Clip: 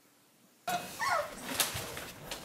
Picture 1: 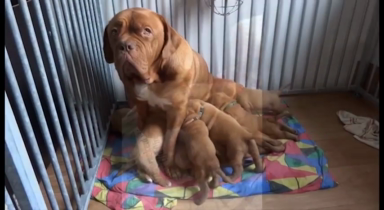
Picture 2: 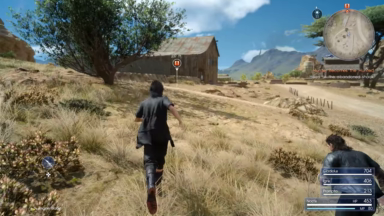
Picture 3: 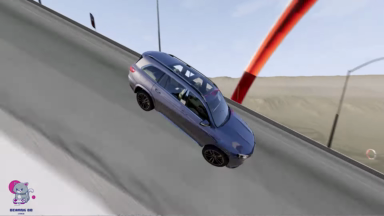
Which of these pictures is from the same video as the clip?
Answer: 1